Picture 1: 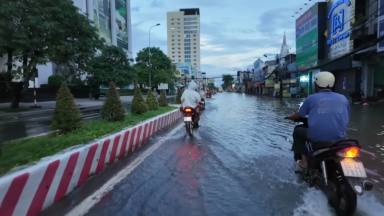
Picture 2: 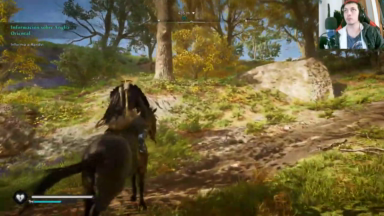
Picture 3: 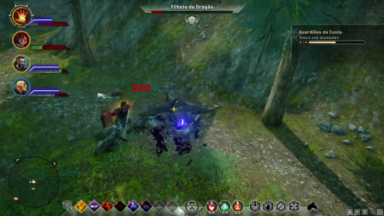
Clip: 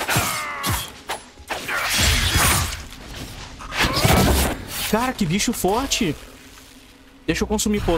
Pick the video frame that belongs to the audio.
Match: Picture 3